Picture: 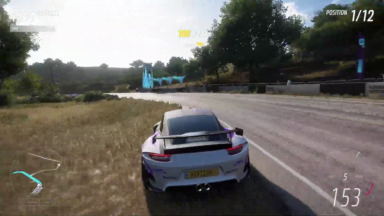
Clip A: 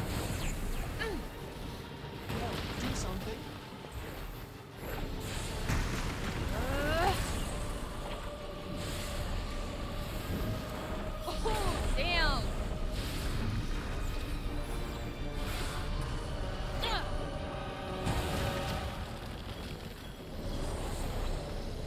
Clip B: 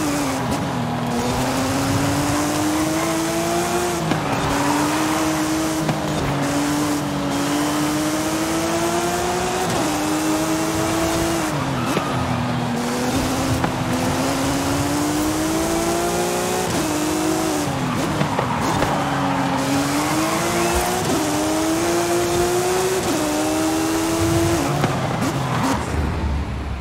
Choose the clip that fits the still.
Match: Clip B